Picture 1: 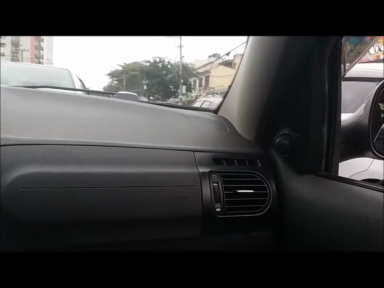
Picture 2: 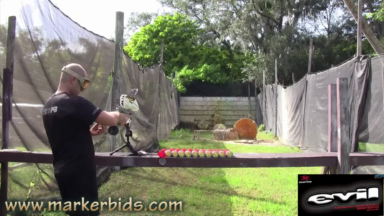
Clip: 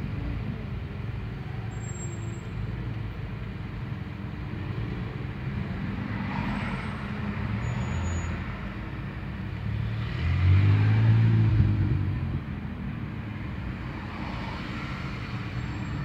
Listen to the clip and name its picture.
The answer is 1